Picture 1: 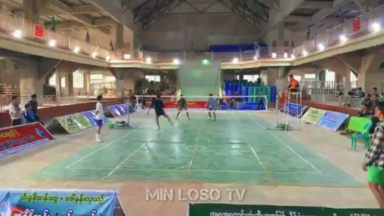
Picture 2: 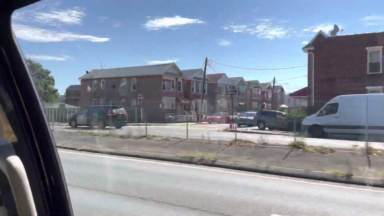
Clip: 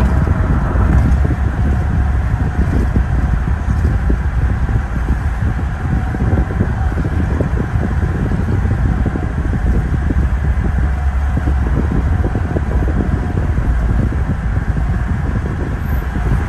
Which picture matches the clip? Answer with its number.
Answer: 2